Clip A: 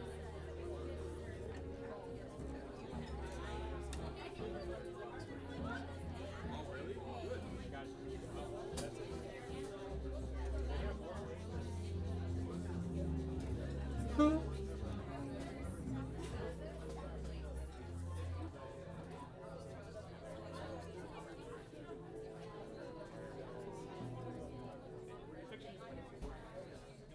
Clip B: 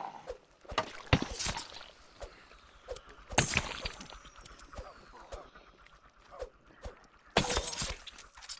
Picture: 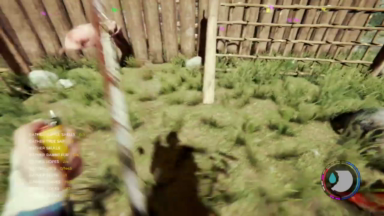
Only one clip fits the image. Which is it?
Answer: B